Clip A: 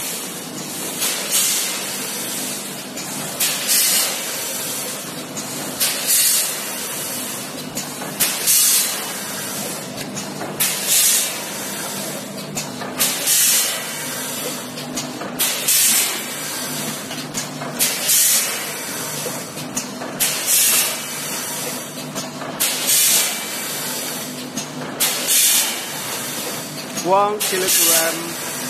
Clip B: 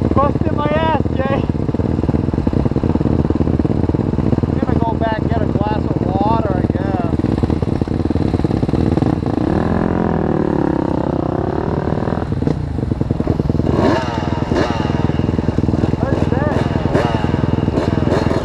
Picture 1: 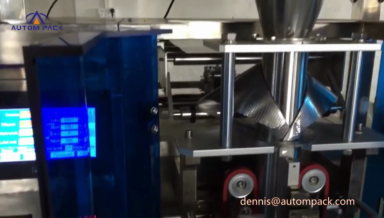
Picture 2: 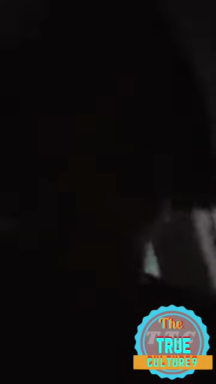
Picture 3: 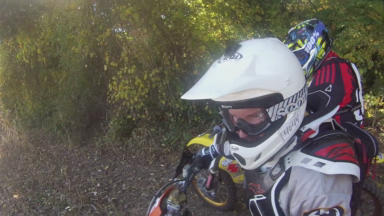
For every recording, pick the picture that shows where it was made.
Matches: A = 1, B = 3